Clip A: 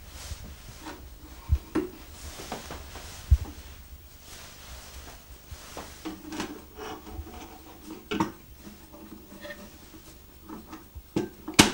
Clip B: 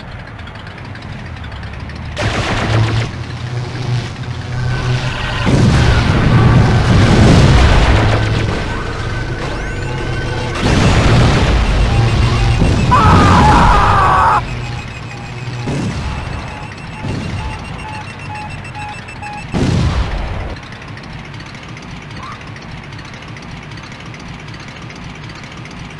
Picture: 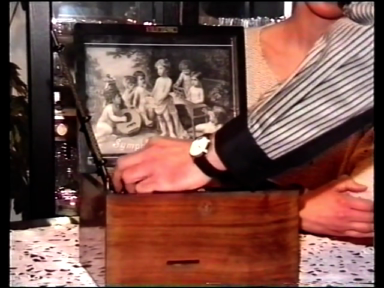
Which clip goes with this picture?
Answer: A